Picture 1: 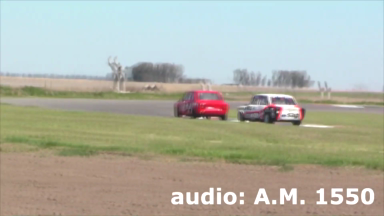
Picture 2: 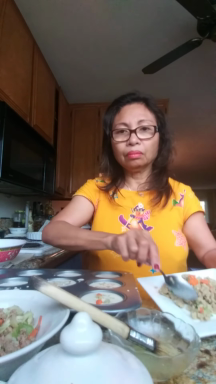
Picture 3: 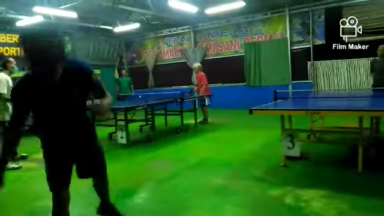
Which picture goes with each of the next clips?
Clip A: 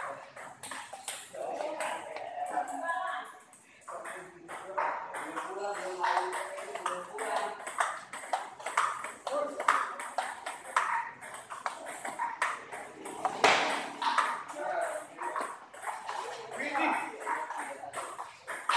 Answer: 3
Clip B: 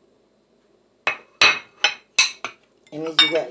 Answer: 2